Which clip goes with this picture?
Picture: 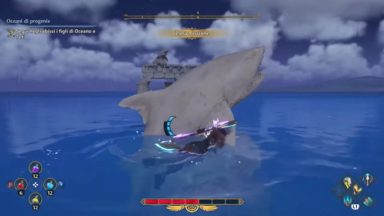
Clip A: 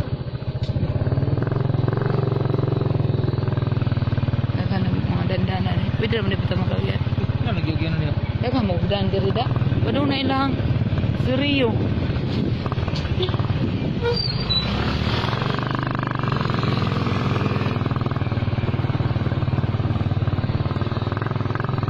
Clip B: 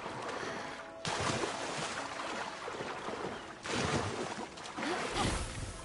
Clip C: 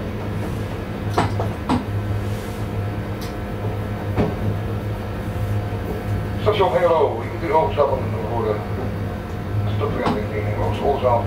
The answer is B